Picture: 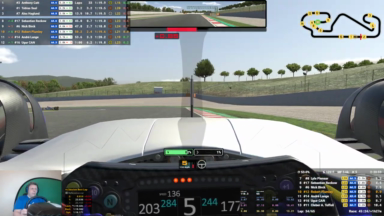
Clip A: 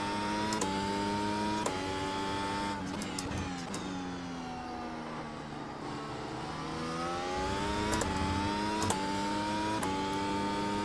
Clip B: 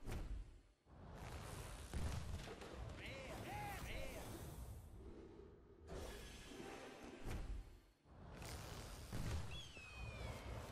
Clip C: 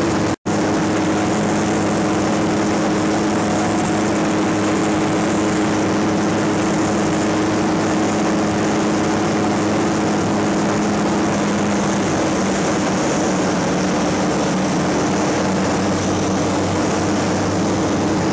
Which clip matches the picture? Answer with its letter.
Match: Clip A